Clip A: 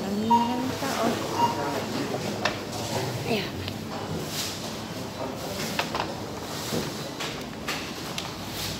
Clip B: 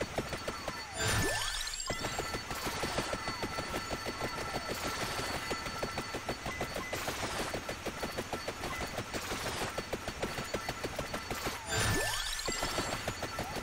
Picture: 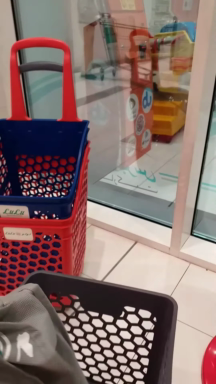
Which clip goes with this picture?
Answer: A